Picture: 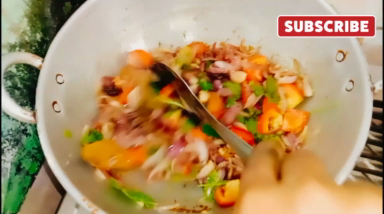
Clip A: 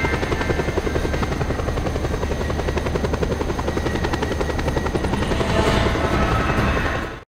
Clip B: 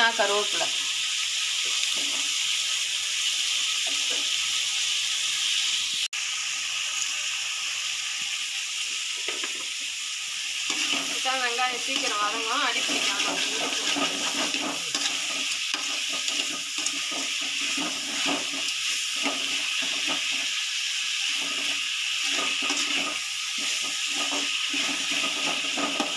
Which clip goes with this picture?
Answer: B